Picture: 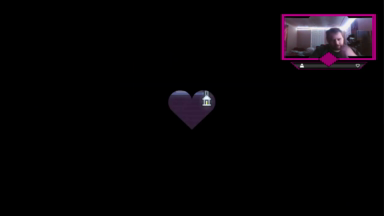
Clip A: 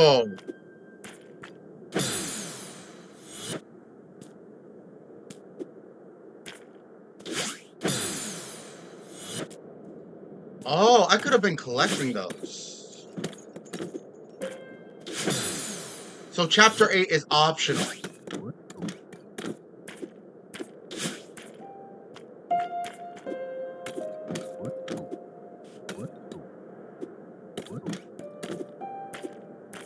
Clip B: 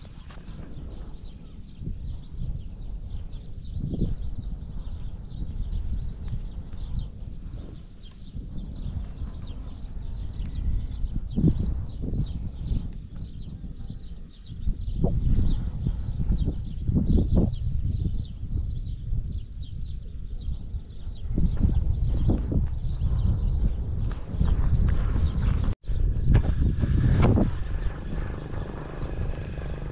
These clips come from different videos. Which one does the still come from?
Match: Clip A